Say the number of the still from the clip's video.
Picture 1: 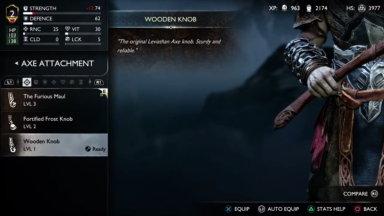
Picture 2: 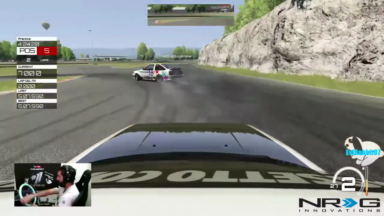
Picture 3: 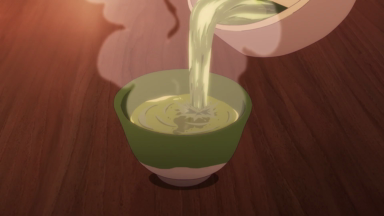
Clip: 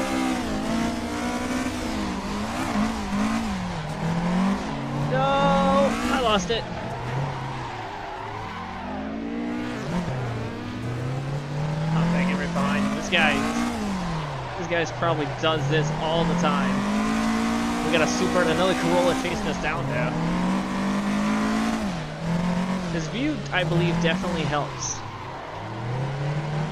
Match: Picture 2